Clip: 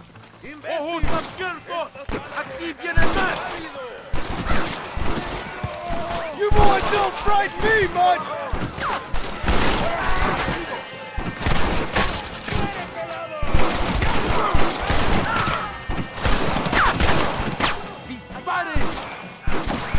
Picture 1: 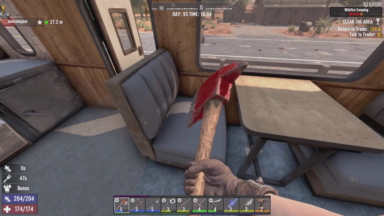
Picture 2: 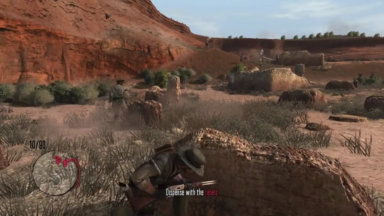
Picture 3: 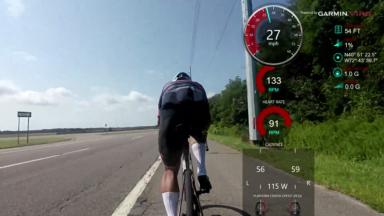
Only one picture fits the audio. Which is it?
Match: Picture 2